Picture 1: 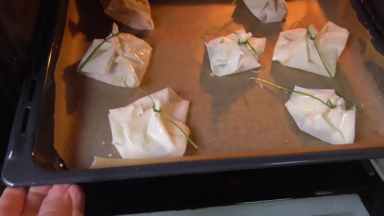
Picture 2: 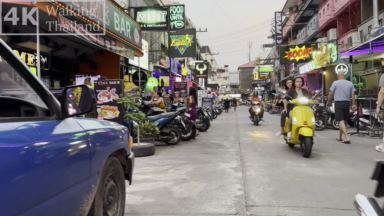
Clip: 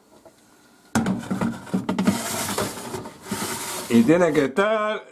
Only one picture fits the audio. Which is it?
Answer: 1